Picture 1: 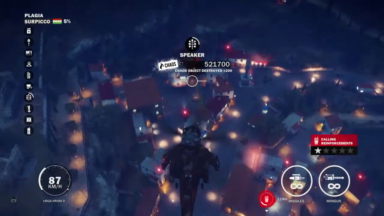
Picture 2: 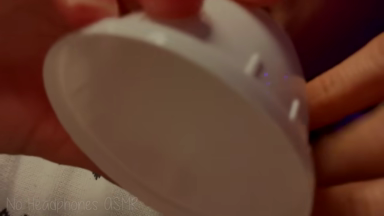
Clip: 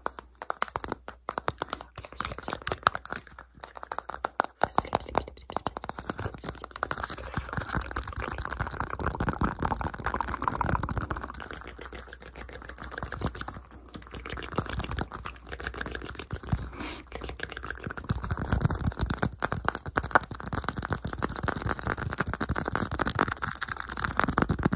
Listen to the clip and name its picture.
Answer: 2